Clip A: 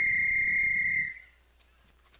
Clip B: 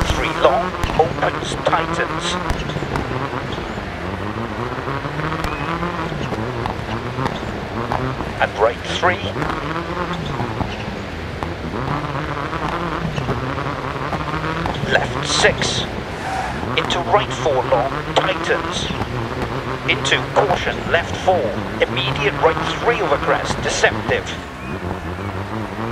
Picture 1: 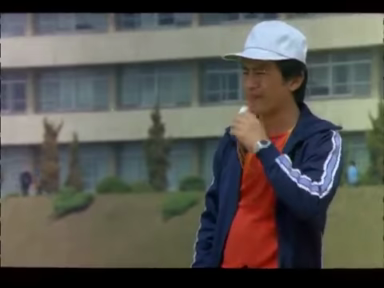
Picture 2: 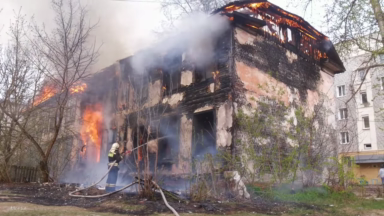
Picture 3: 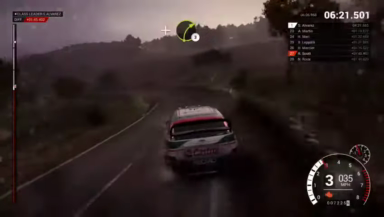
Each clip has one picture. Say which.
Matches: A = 1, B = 3